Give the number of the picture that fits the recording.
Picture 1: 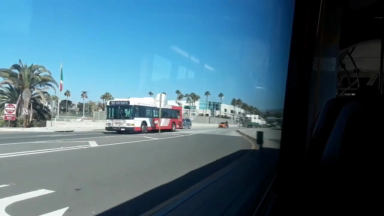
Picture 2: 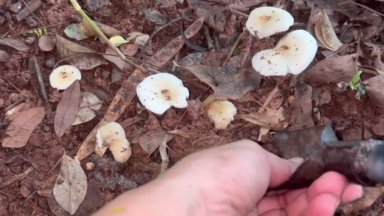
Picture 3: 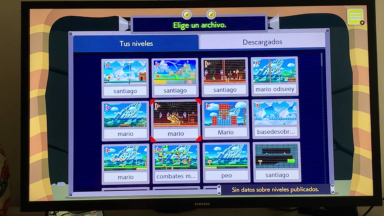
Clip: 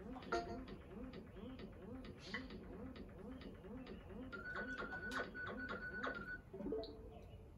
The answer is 3